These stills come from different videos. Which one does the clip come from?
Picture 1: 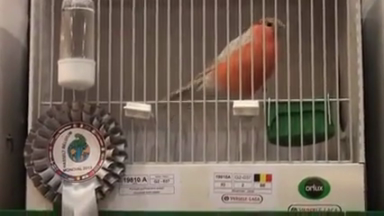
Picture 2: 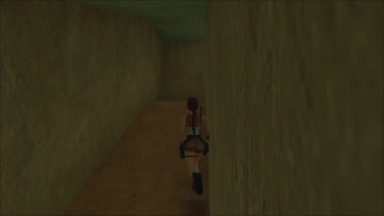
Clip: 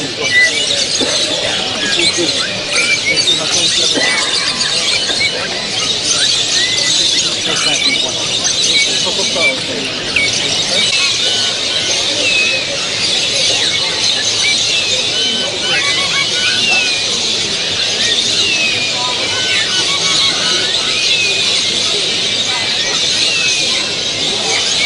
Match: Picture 1